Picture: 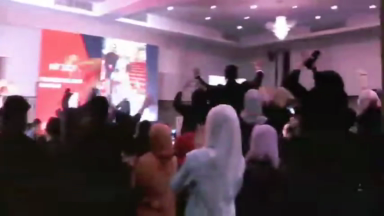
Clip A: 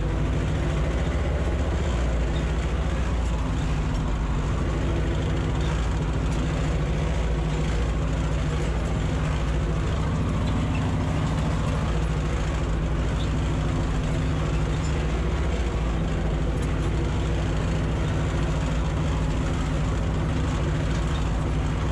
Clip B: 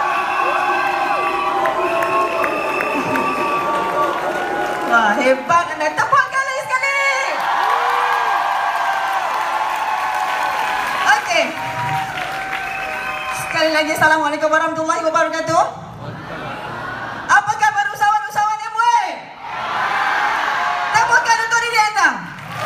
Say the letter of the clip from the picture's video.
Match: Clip B